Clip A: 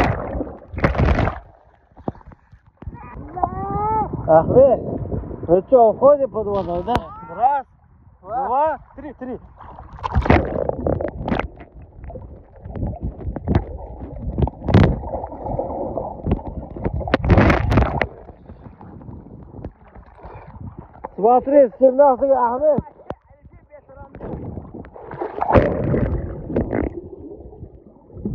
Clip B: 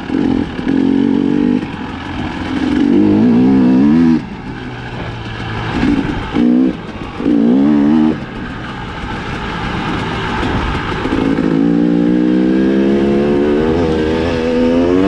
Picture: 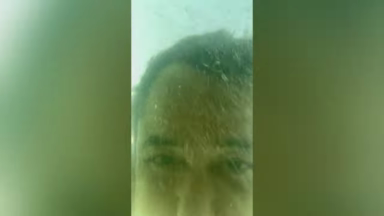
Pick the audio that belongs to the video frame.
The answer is A